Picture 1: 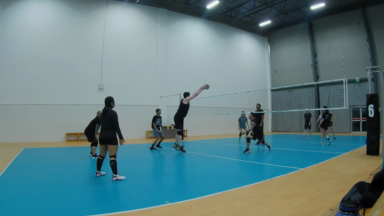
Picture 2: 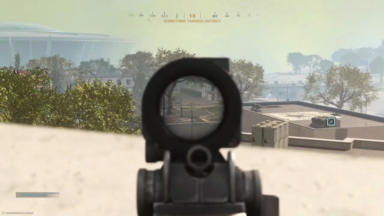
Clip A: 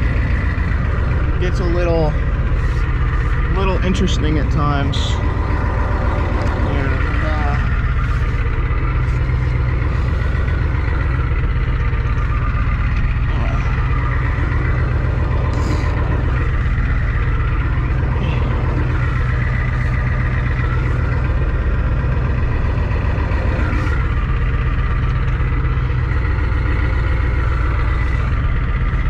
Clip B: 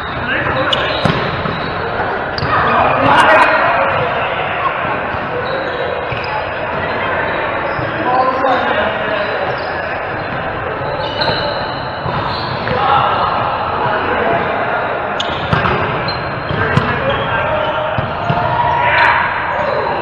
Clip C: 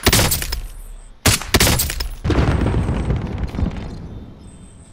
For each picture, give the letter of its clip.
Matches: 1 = B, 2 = C